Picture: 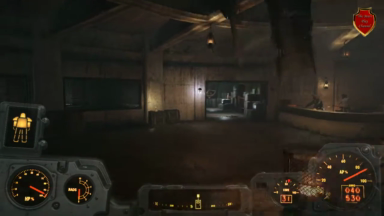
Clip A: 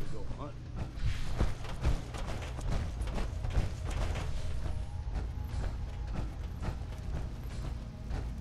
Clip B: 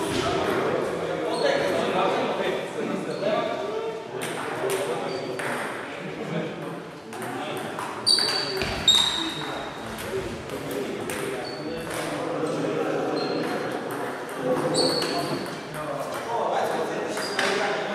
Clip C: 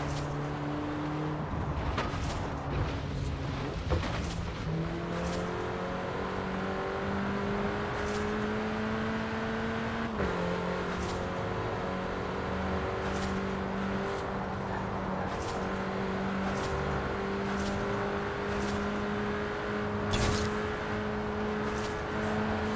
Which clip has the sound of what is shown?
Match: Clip A